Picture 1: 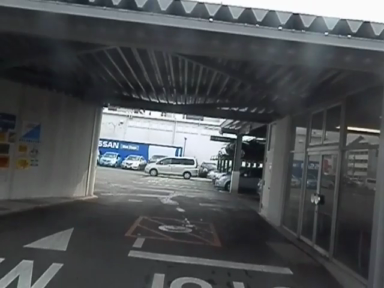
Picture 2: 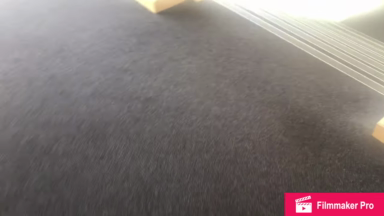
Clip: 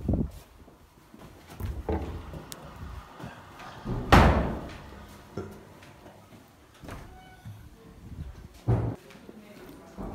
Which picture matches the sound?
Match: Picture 2